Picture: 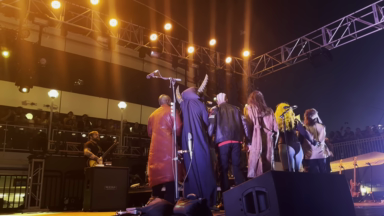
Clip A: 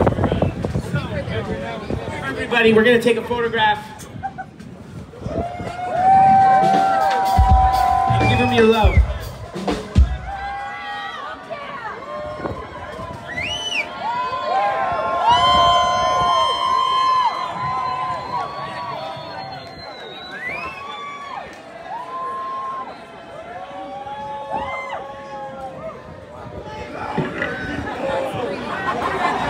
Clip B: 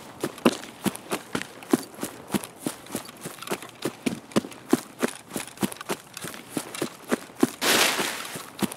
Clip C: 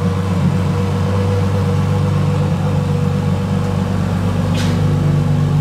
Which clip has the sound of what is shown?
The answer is A